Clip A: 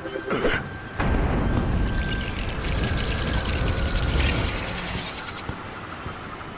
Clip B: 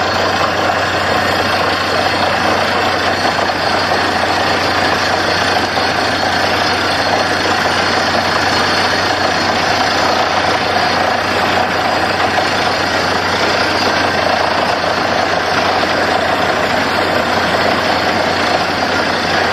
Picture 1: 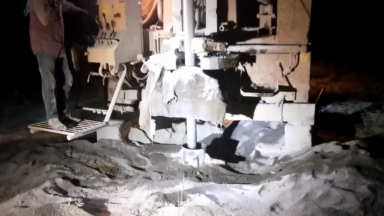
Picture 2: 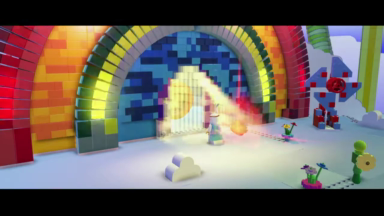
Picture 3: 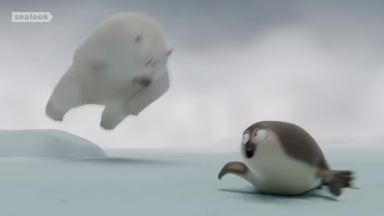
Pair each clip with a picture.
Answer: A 2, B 1